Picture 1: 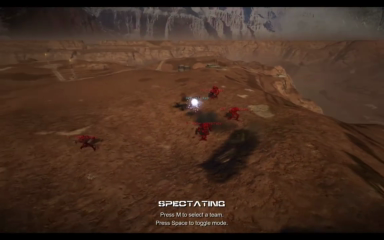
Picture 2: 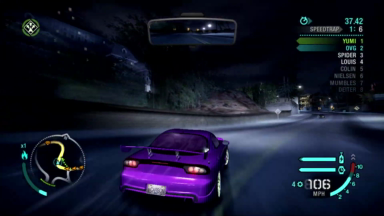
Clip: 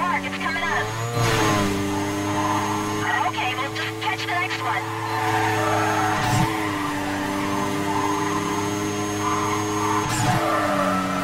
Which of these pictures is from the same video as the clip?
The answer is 2